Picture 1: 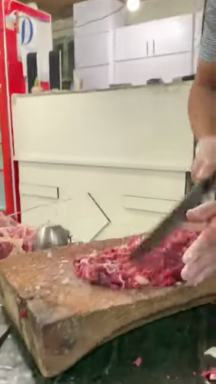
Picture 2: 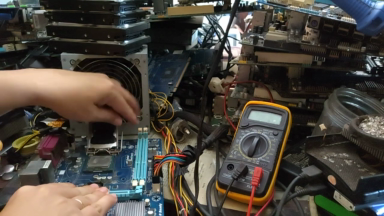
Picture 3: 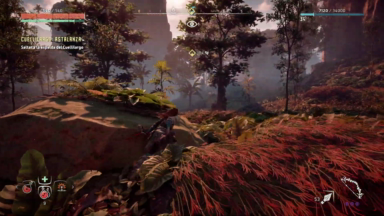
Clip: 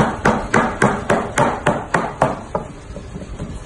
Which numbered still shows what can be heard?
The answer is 1